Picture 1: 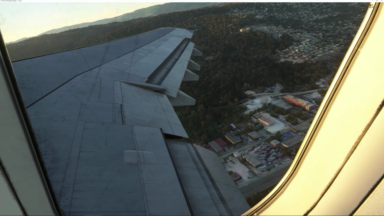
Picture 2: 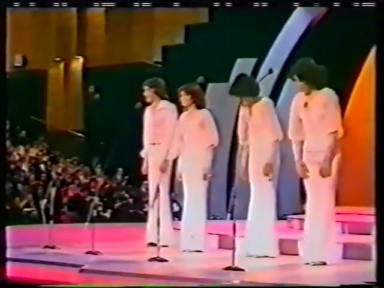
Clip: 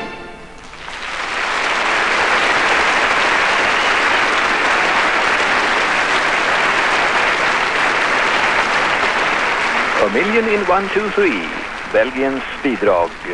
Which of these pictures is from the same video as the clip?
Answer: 2